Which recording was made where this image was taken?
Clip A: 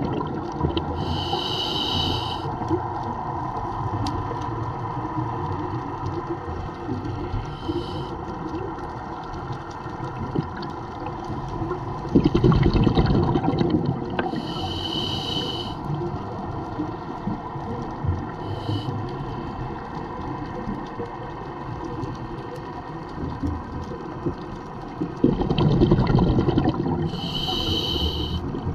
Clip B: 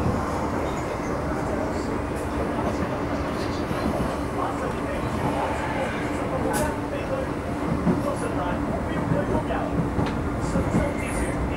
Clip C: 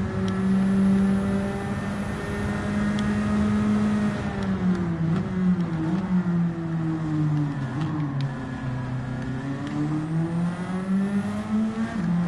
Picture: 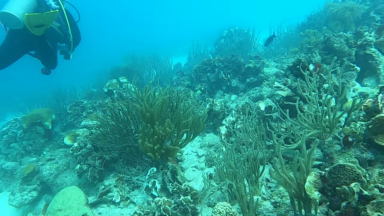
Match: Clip A